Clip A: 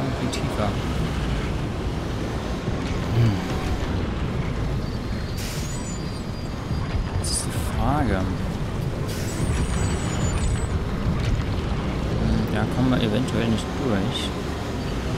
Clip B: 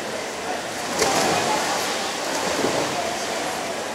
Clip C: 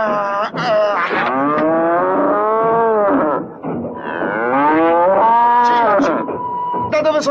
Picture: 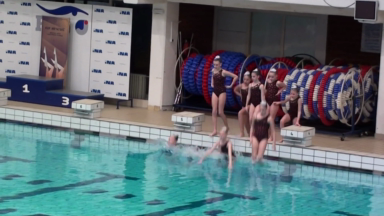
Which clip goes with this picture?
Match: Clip B